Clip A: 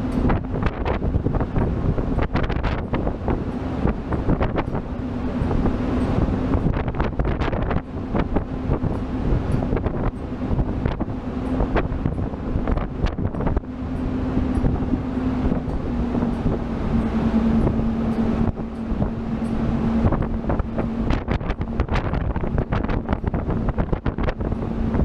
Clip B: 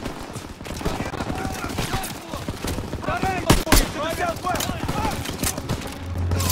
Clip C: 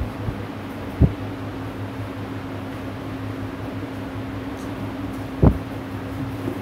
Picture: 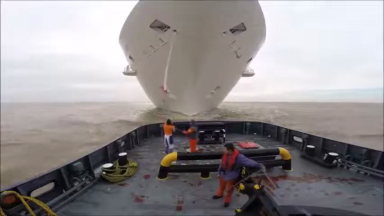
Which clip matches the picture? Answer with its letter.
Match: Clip A